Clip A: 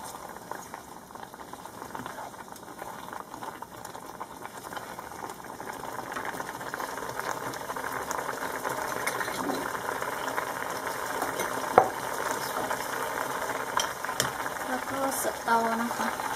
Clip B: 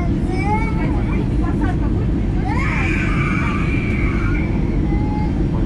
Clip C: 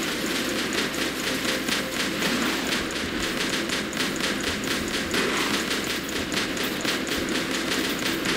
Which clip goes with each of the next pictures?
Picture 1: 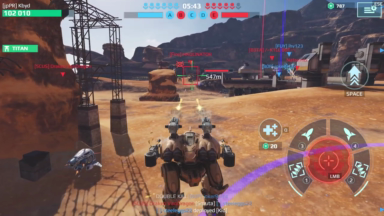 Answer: C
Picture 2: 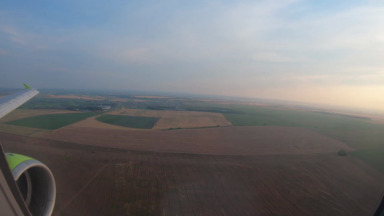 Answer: B